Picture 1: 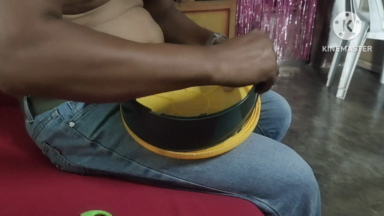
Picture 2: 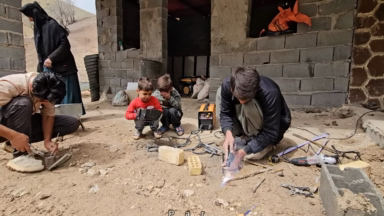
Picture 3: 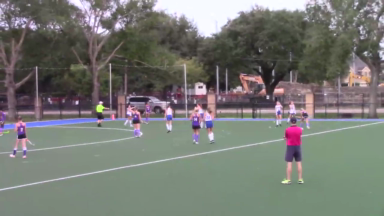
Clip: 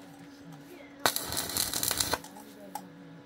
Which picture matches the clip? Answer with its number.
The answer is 2